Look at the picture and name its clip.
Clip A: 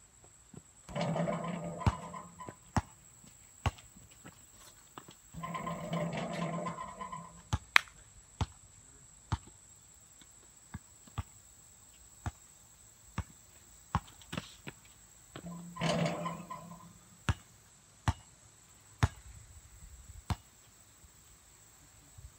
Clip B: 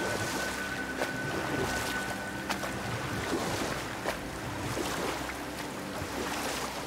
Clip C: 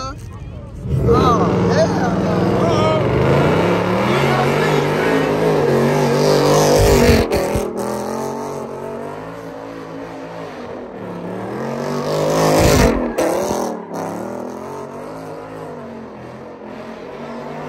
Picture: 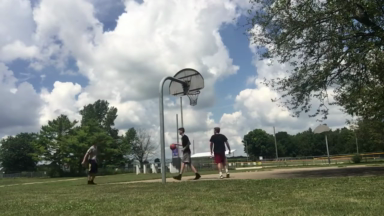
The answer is A